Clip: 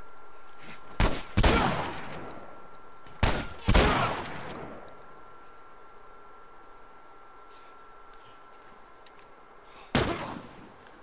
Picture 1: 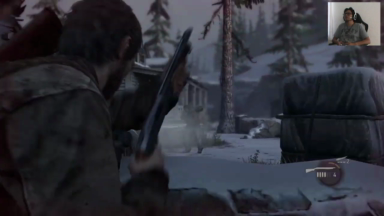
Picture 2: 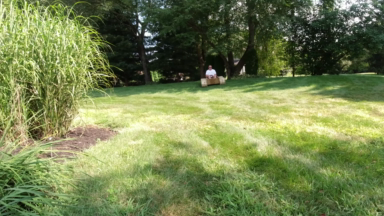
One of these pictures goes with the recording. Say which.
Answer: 1